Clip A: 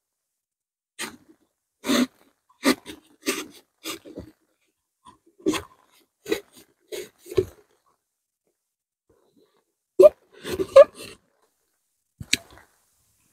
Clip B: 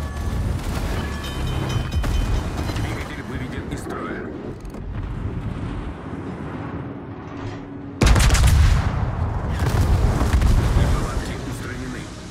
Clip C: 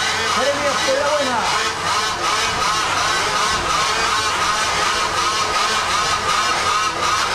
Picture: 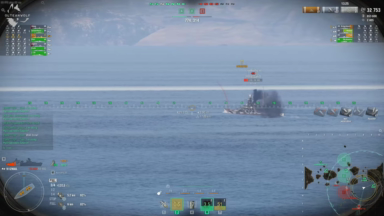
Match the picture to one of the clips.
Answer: B